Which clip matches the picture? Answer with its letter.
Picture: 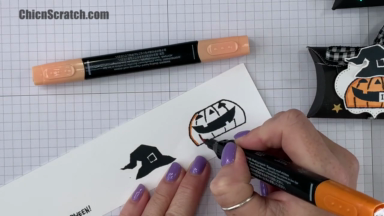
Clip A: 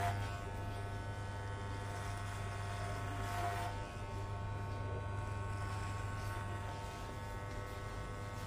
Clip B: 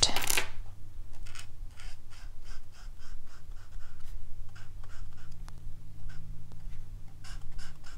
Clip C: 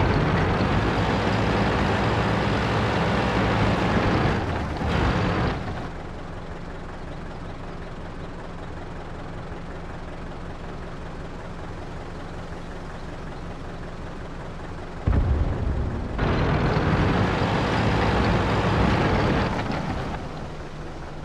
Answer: B